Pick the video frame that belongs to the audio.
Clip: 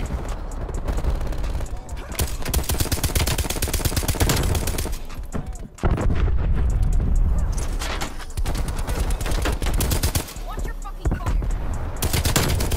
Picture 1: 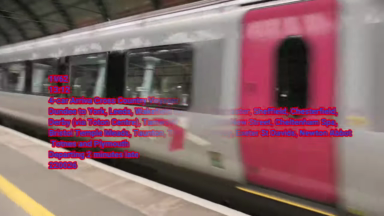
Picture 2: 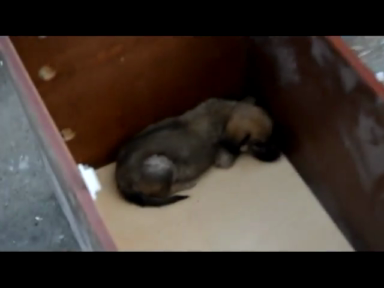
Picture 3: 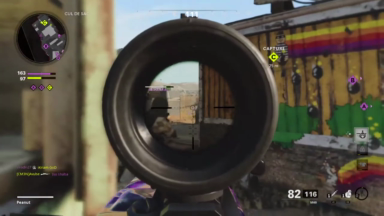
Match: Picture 3